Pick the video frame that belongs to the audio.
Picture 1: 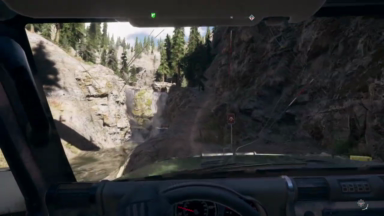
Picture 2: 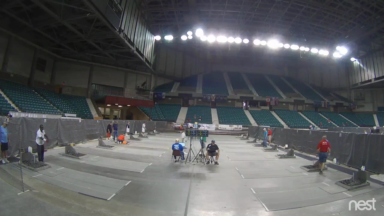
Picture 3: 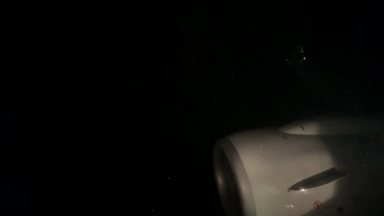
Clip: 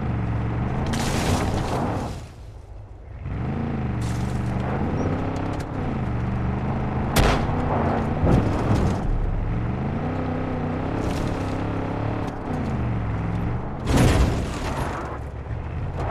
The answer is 1